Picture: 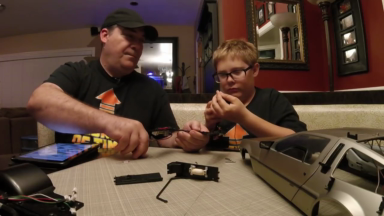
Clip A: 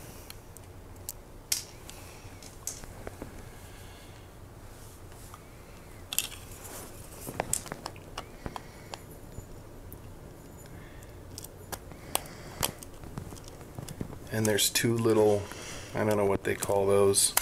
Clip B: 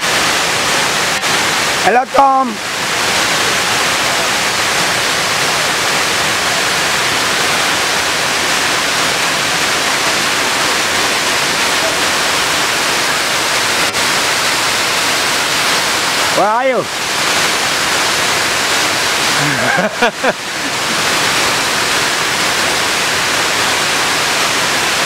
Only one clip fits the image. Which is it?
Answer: A